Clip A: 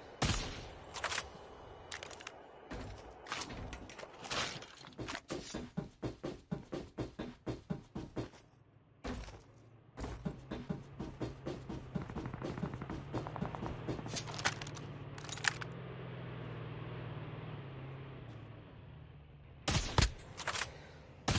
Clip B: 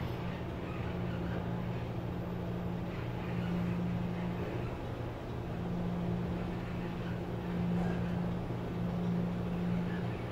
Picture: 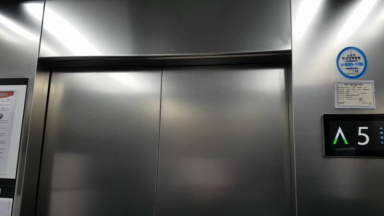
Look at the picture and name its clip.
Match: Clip B